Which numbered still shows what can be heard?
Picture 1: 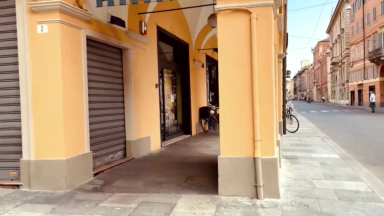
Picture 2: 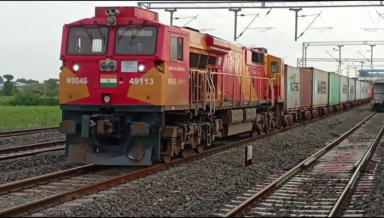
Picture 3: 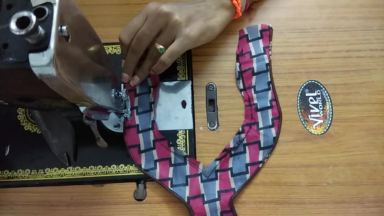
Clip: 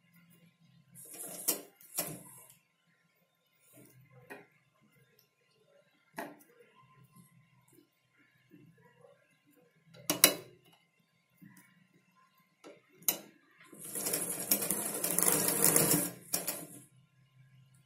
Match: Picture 3